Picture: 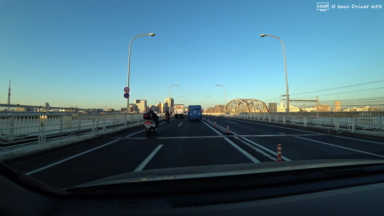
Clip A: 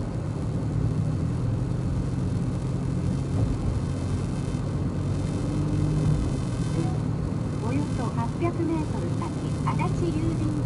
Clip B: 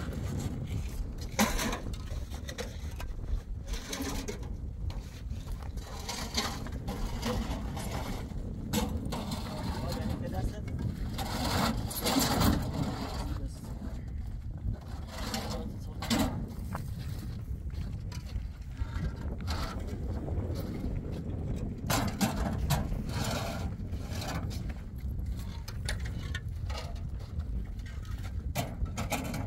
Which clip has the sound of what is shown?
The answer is A